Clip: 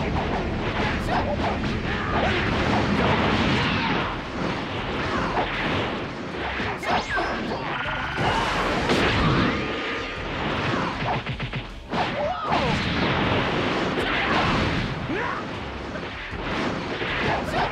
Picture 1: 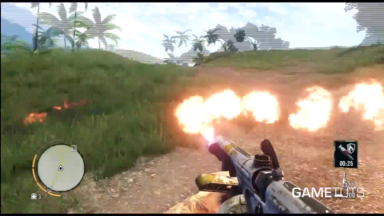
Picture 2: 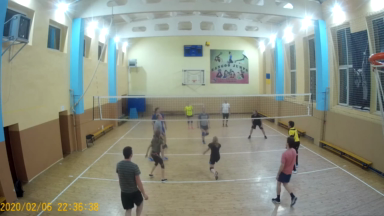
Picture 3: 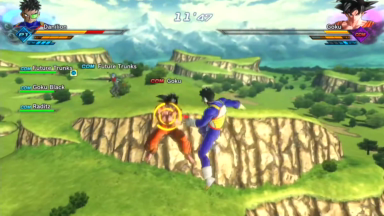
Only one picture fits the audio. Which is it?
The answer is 3